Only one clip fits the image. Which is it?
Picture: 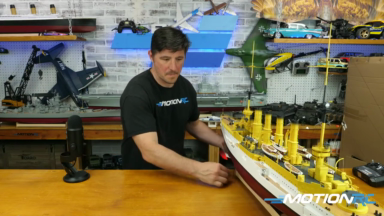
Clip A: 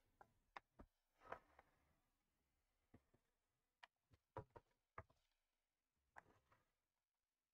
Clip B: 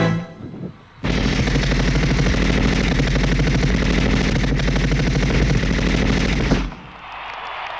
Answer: A